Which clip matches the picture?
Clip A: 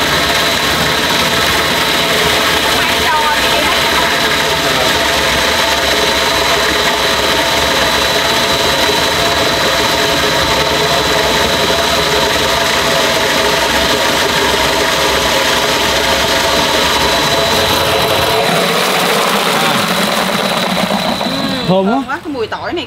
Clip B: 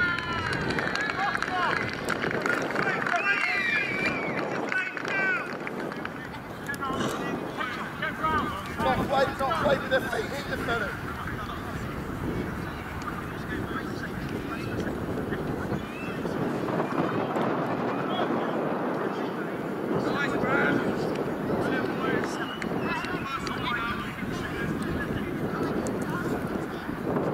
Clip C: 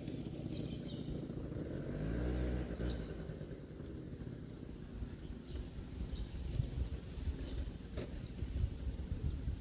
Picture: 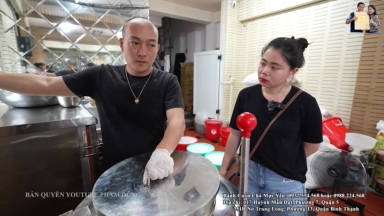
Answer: A